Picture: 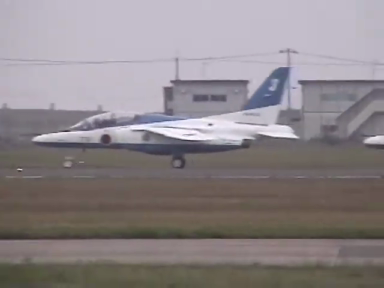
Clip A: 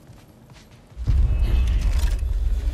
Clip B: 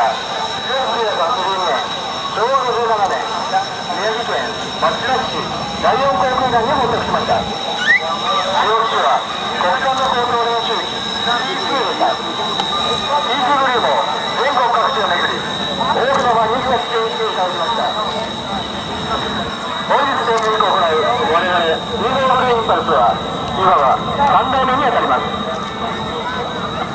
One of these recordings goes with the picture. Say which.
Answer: B